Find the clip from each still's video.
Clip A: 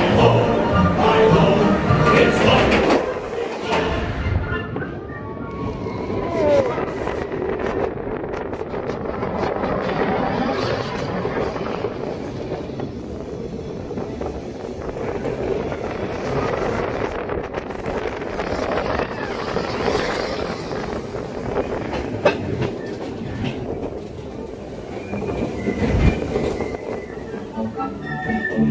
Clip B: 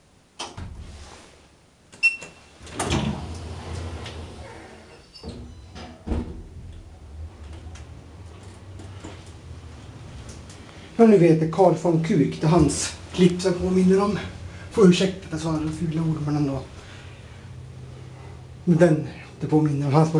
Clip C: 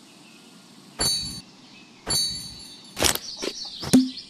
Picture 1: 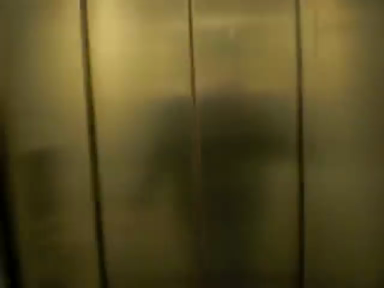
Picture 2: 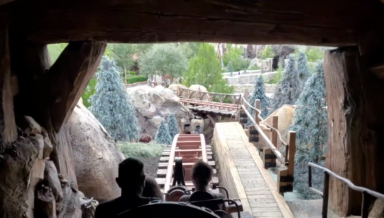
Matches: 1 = B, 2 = A